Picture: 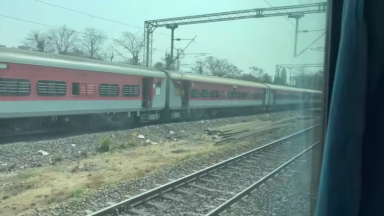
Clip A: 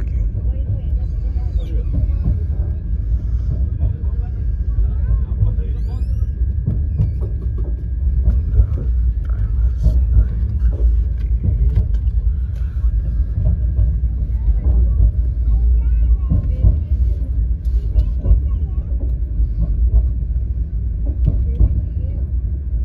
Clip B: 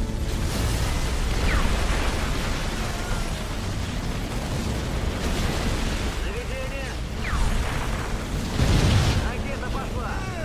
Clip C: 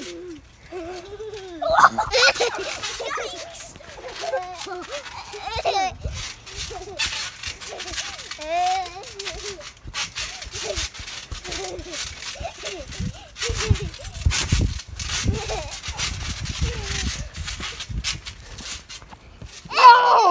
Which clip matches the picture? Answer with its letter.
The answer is A